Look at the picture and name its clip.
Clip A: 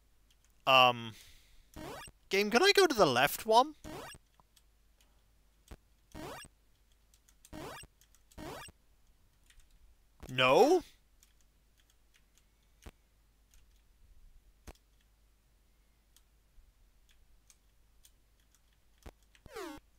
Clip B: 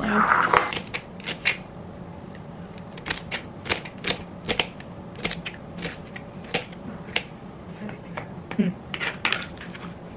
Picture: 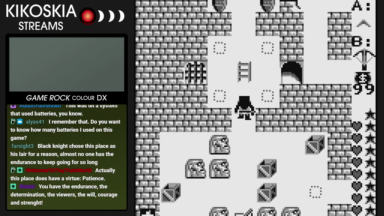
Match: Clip A